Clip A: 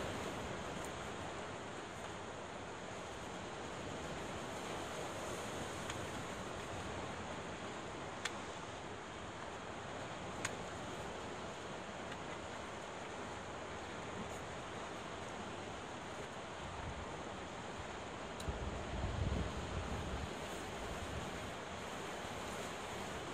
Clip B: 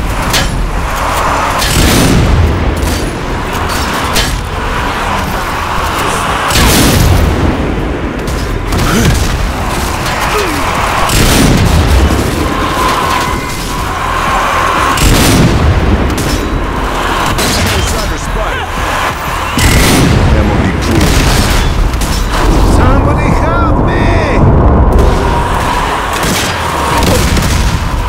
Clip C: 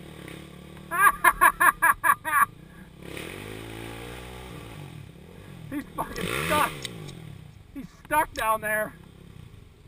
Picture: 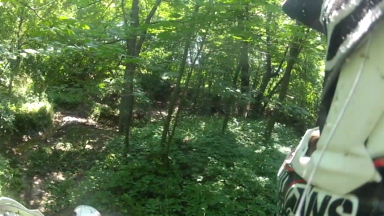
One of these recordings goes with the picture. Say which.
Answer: C